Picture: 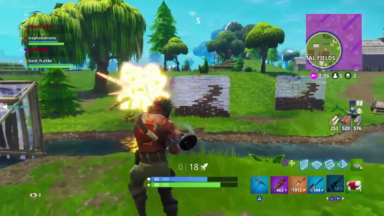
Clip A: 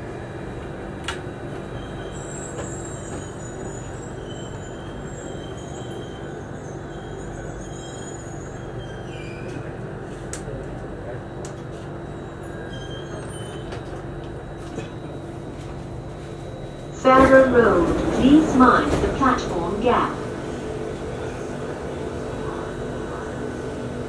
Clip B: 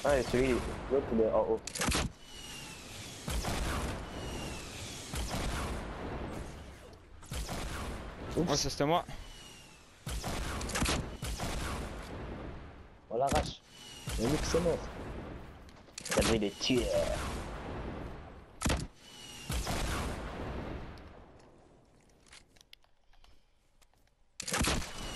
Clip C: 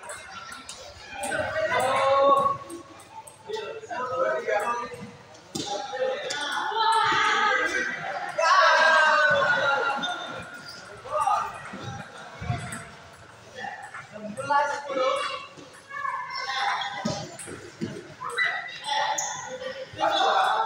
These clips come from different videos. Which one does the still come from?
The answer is B